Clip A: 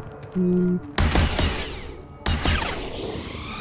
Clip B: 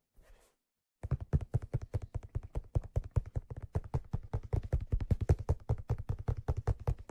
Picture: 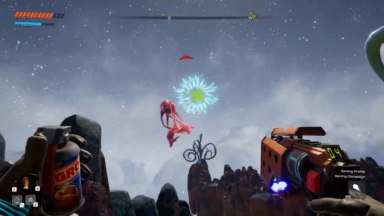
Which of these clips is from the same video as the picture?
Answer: A